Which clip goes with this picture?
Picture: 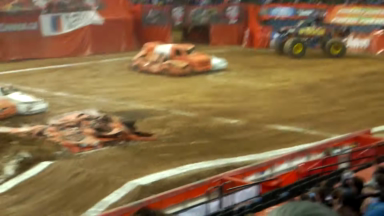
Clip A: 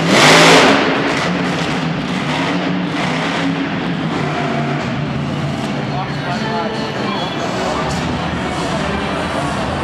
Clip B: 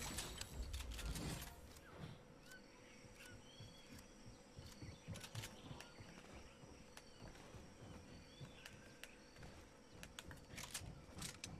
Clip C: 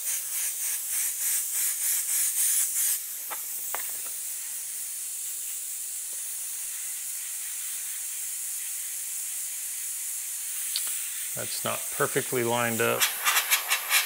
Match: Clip A